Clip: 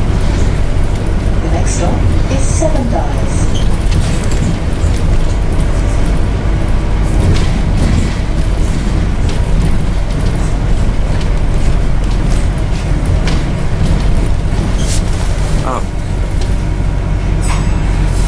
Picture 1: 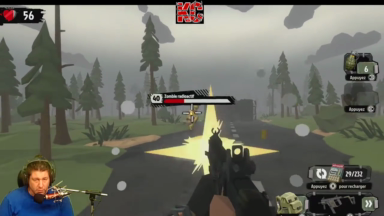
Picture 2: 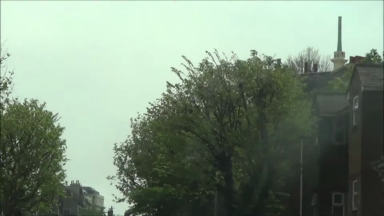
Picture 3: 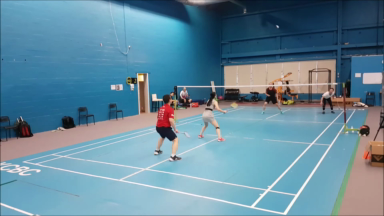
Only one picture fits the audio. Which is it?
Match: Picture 2